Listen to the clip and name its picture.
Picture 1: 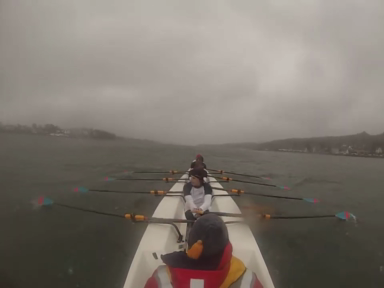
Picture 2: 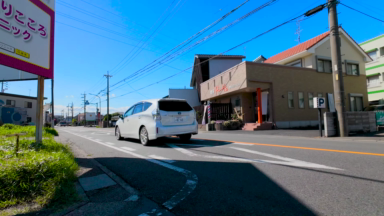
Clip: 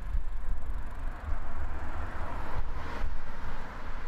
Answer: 2